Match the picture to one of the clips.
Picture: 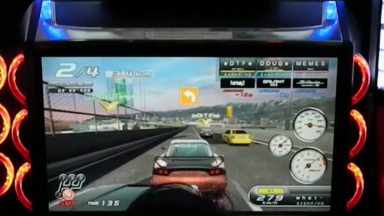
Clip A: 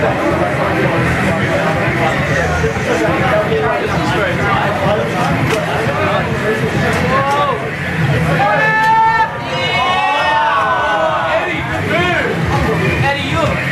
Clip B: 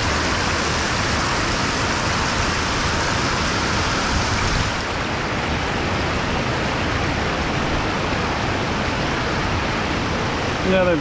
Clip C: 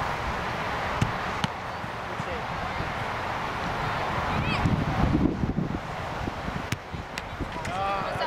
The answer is A